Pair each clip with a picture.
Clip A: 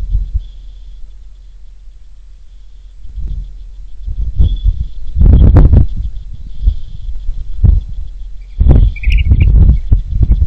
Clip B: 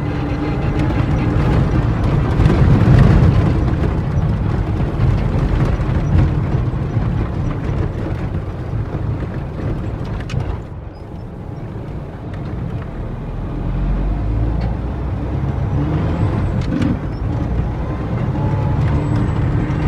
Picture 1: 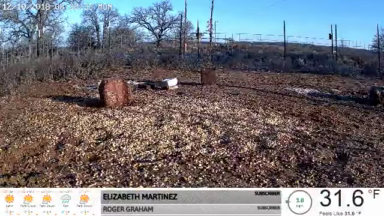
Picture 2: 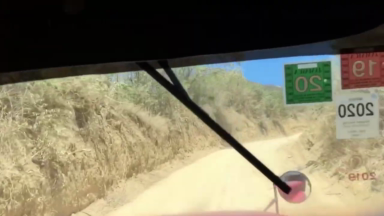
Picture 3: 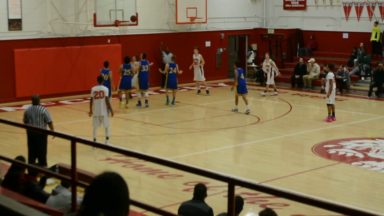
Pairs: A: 1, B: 2